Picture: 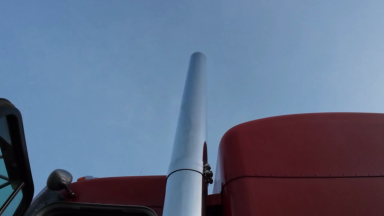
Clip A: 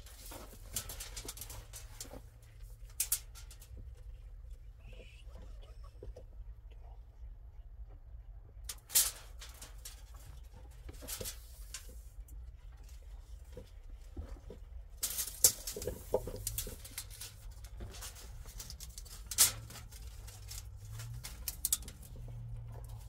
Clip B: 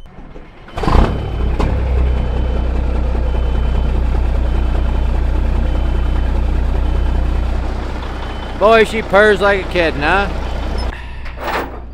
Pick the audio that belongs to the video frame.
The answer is B